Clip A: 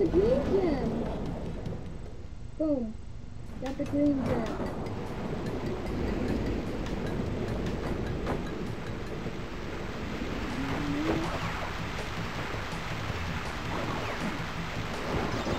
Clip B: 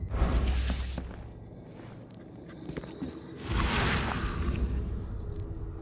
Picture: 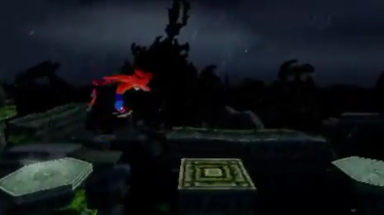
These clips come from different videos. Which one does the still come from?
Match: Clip A